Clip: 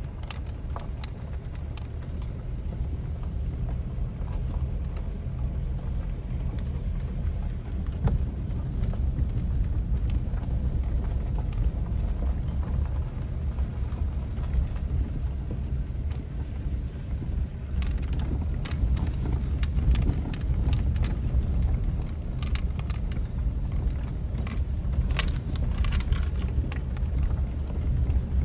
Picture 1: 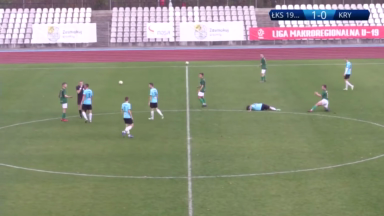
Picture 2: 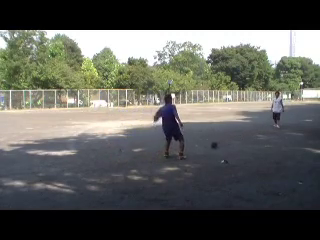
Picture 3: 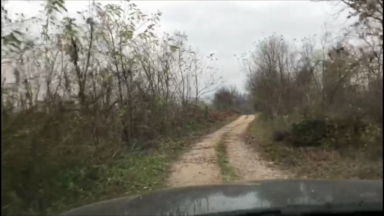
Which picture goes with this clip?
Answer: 3